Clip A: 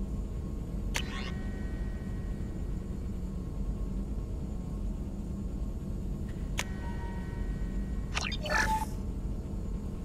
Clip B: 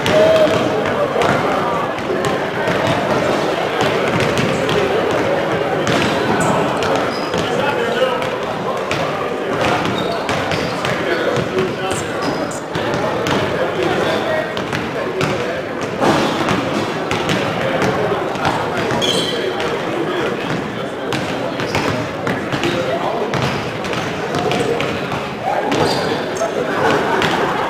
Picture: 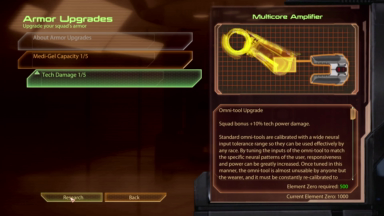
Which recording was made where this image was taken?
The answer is A